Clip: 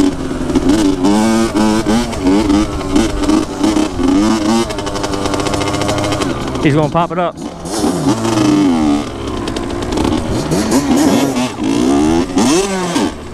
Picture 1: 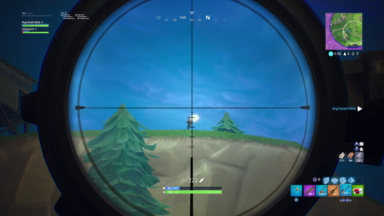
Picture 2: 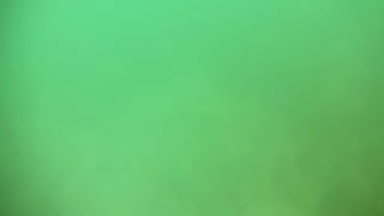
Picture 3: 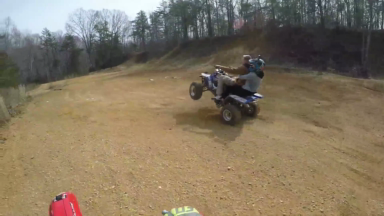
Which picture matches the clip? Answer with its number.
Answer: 3